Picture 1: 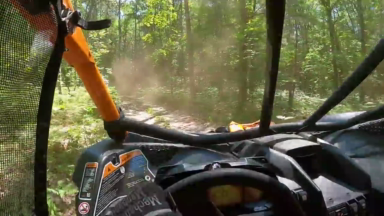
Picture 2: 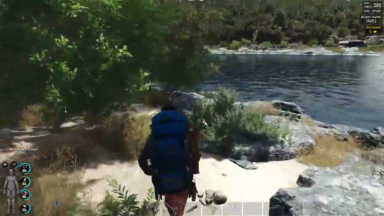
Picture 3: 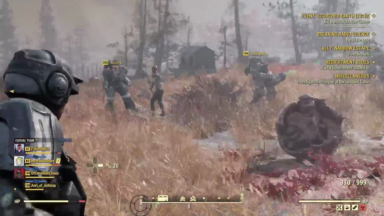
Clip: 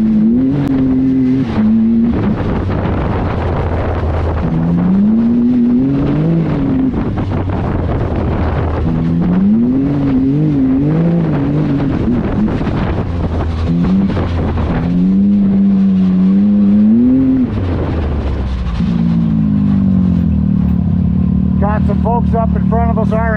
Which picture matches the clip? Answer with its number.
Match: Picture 1